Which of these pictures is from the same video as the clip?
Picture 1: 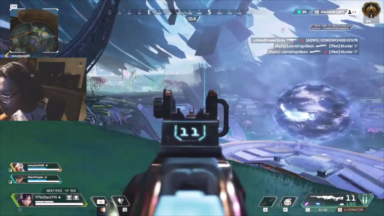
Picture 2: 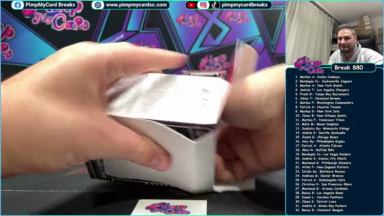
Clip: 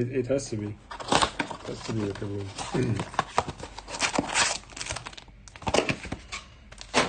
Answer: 2